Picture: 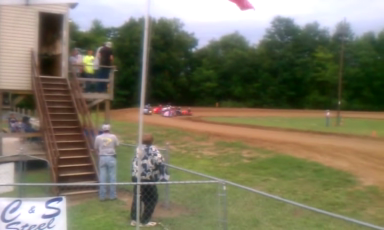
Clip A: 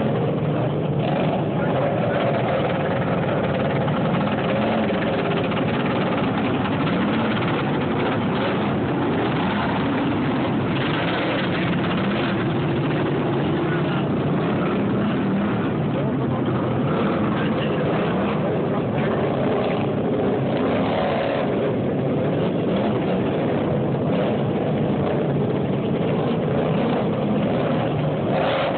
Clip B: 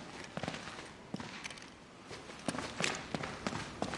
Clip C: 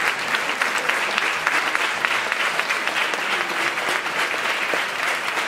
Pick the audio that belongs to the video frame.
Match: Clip A